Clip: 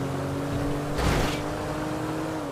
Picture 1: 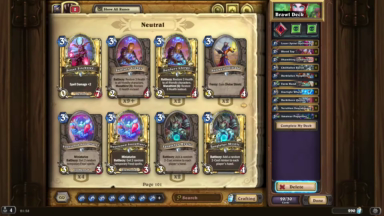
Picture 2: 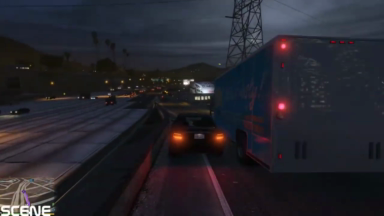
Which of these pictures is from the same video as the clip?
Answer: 2